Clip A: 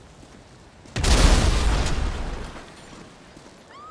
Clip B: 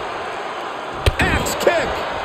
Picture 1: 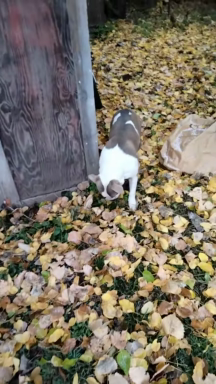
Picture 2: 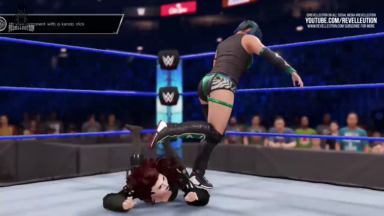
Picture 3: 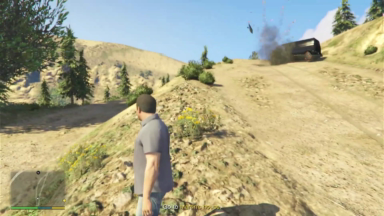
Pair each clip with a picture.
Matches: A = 3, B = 2